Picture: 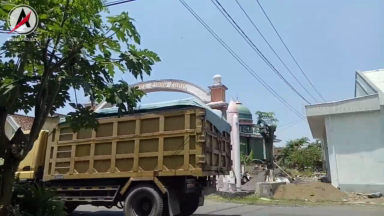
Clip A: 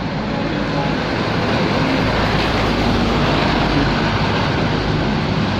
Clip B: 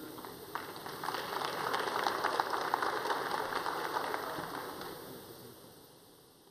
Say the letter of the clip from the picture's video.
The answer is A